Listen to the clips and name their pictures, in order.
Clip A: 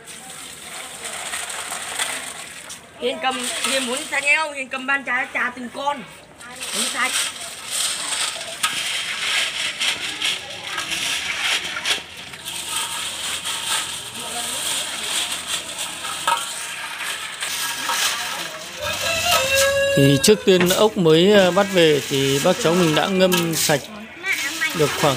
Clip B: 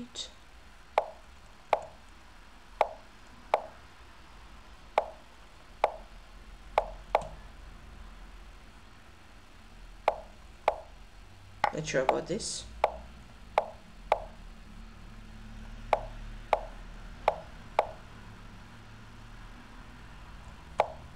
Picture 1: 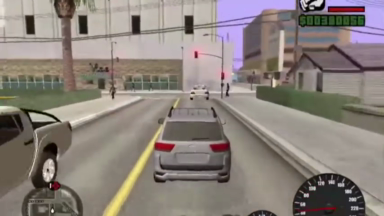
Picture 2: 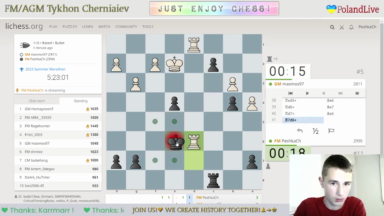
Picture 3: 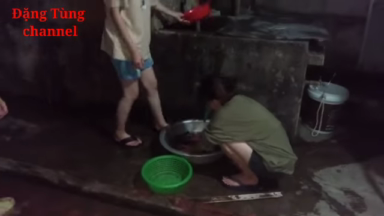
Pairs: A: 3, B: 2